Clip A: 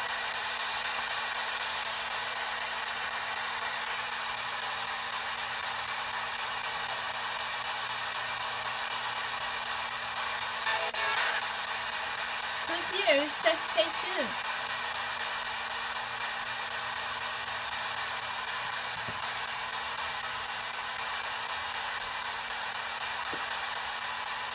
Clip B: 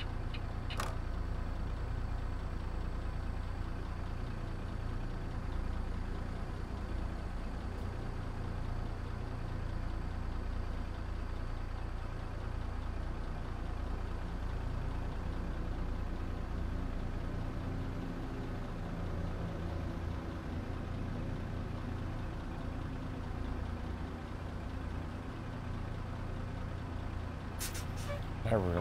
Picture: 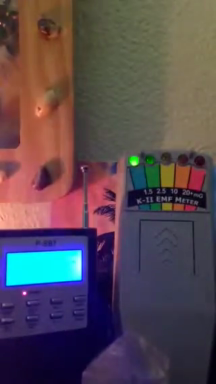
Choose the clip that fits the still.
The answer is A